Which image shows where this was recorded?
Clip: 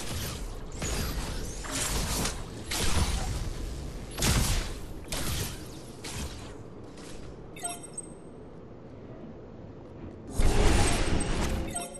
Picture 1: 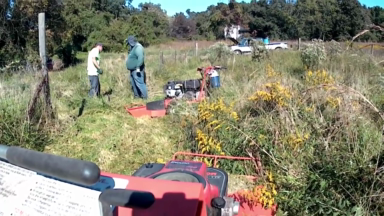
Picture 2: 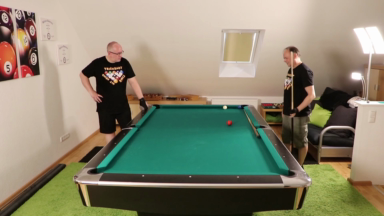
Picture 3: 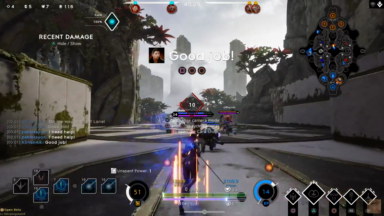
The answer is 3